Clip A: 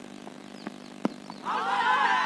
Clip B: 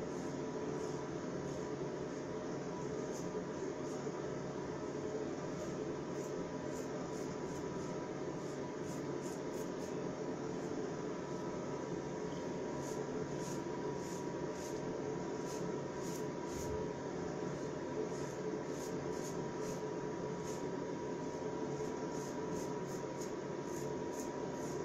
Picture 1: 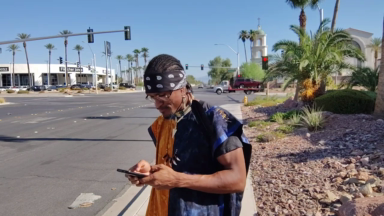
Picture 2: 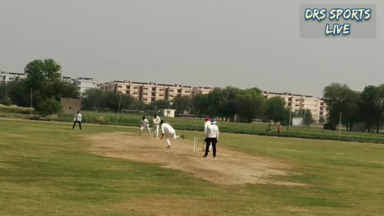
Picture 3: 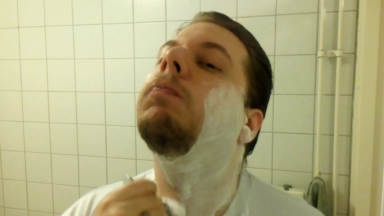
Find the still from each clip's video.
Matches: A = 2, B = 3